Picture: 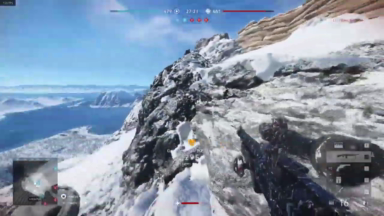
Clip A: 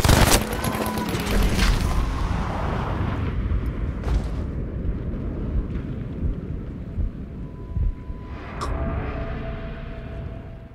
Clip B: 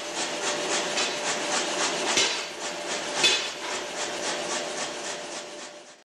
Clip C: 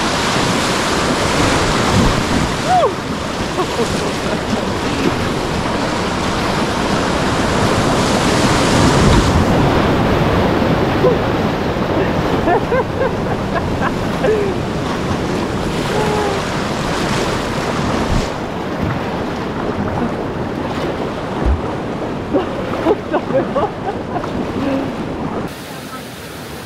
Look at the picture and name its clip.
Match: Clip A